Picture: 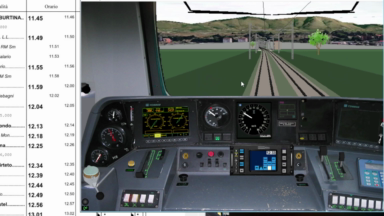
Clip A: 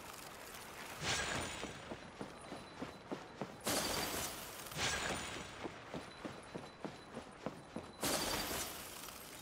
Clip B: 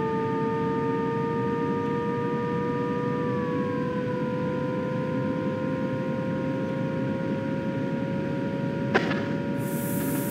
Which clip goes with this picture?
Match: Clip B